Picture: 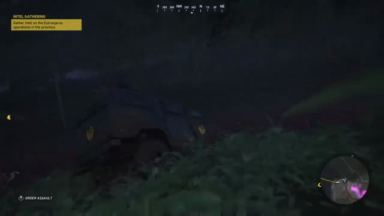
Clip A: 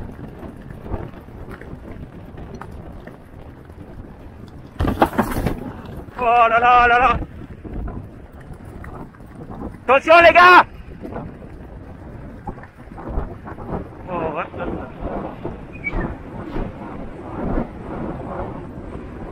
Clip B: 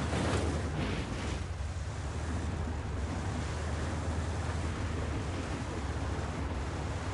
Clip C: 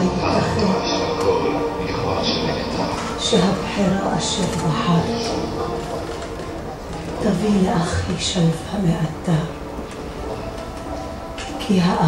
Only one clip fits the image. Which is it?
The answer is B